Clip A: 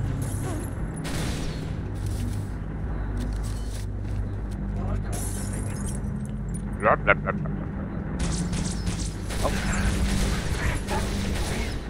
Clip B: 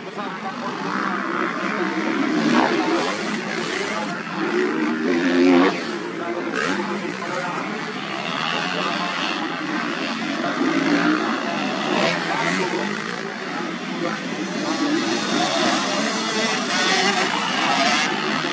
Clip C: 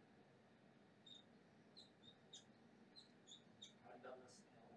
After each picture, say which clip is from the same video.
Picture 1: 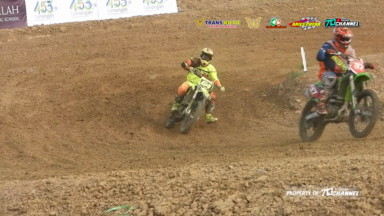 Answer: B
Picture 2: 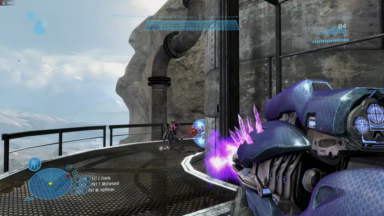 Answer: A